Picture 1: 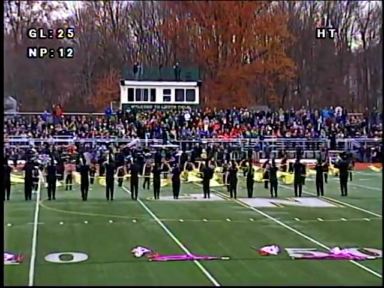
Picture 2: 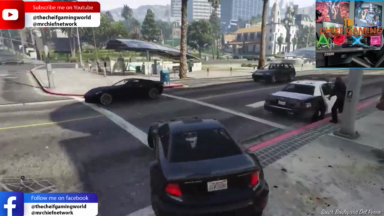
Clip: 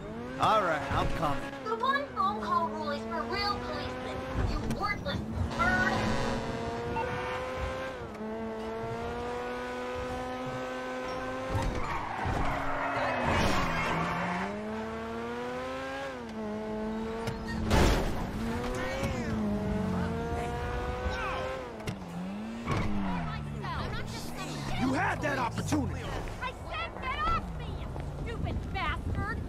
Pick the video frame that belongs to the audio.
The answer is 2